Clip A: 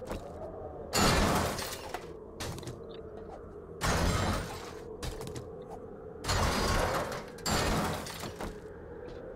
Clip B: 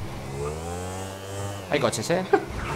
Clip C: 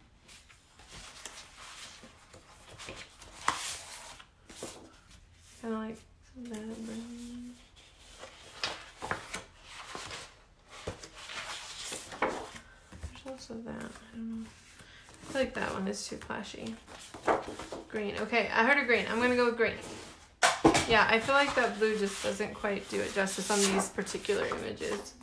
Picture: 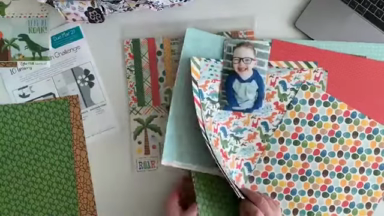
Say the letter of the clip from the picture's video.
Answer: C